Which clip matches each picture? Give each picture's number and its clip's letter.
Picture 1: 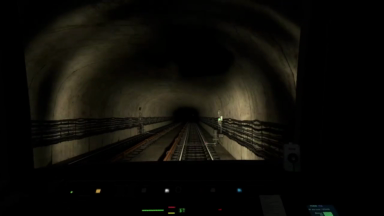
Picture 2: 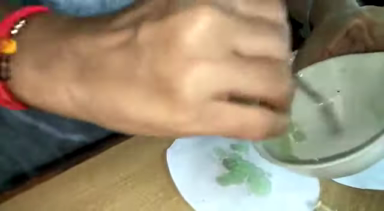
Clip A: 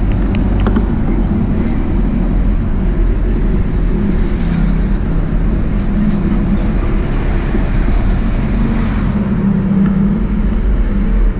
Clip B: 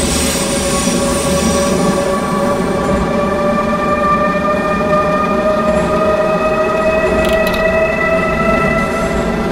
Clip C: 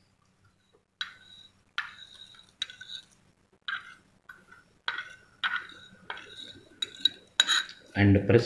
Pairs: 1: B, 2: C